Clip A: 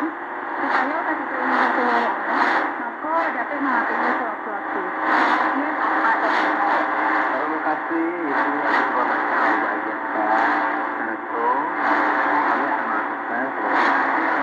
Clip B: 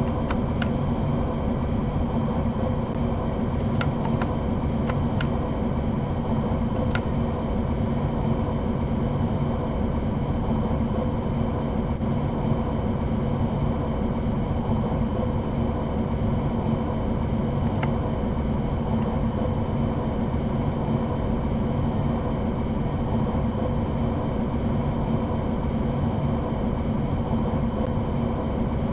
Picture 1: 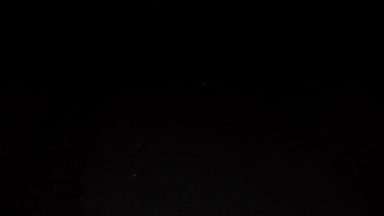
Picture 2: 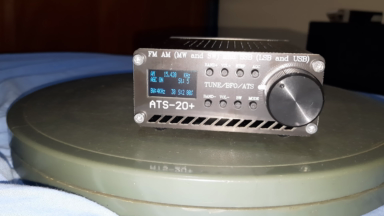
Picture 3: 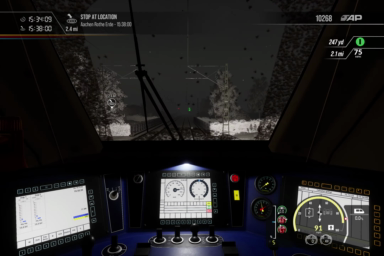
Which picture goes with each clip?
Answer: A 2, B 3